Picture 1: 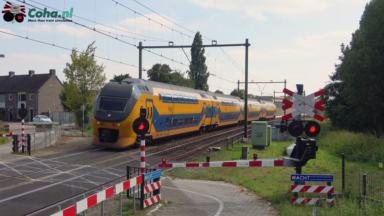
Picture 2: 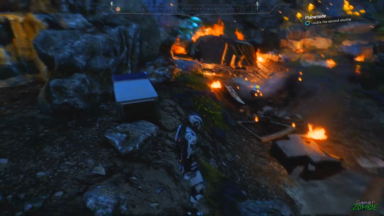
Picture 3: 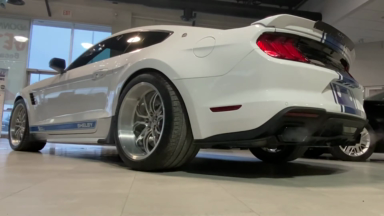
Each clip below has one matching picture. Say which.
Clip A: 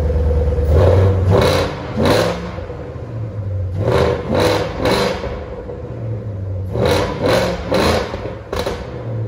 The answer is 3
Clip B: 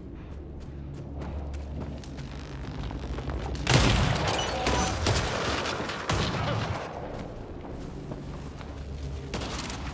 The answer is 2